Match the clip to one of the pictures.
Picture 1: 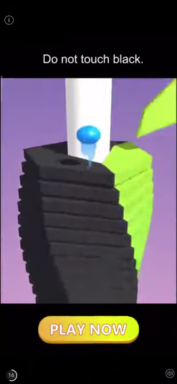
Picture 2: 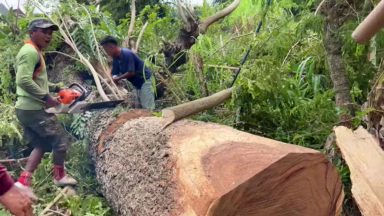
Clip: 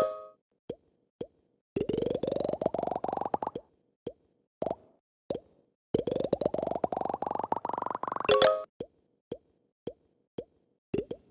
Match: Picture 1